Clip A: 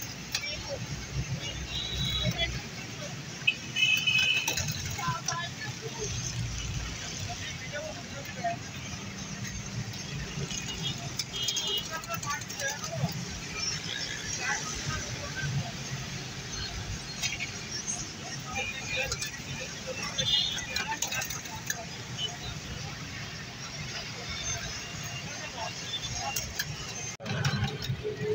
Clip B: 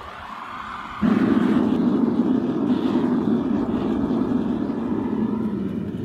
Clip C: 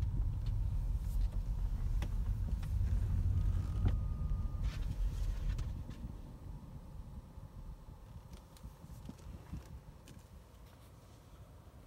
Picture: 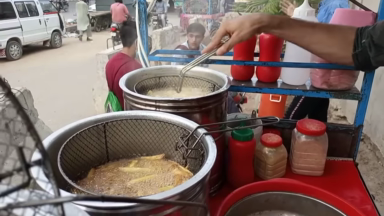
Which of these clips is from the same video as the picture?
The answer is A